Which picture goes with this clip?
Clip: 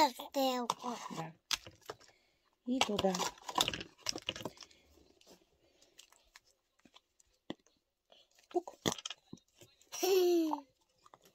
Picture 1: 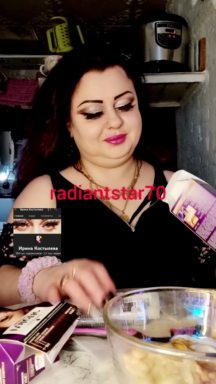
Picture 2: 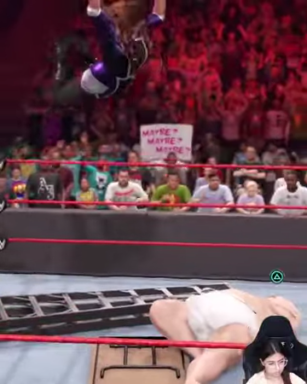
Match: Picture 1